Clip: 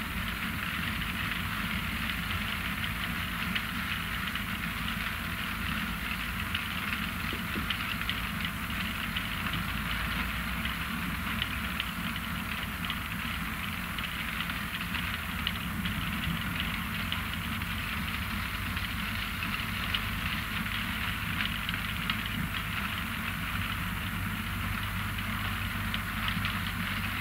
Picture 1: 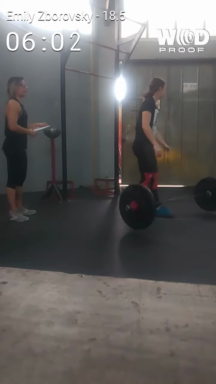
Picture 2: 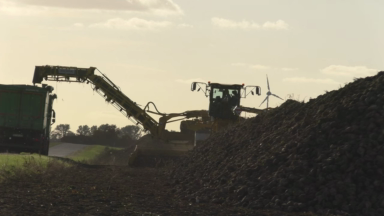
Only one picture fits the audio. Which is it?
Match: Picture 2